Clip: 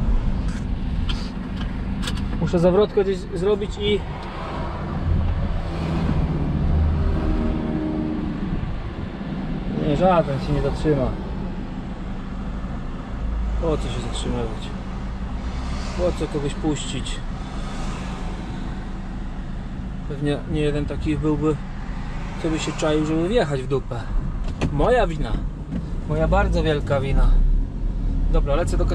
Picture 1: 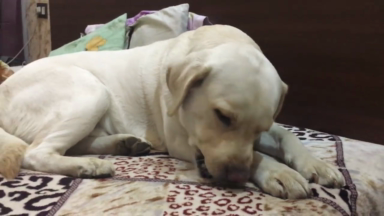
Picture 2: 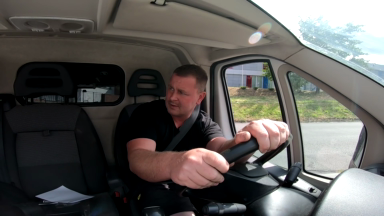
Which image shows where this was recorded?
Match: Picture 2